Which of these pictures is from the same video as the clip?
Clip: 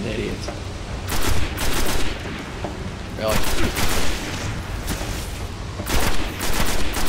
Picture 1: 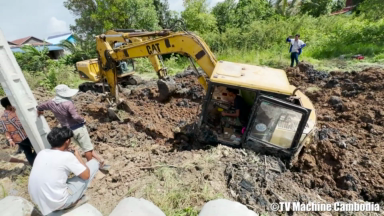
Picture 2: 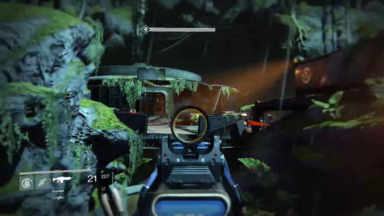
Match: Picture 2